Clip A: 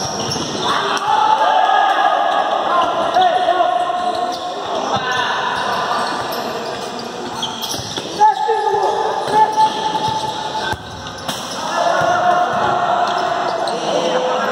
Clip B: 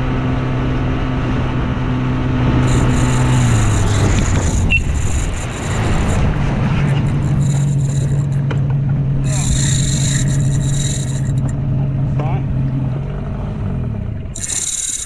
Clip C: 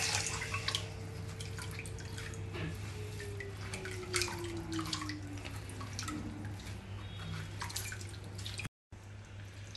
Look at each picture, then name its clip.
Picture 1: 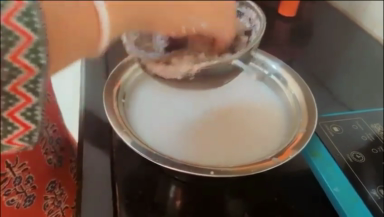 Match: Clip C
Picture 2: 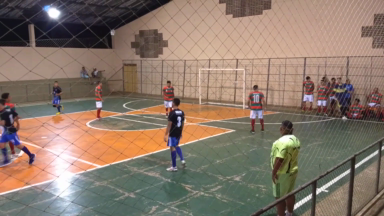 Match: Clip A